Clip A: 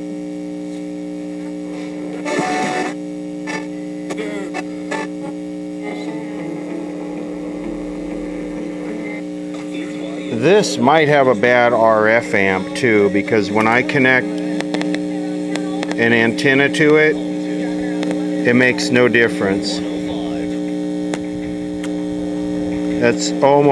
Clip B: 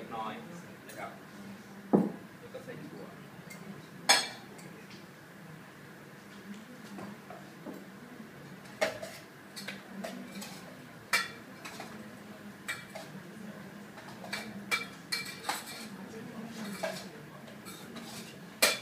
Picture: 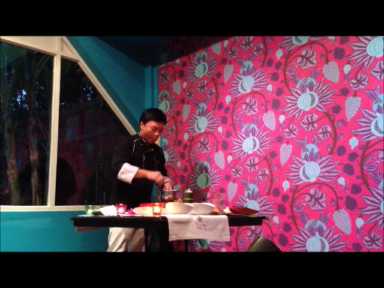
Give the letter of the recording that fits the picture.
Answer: B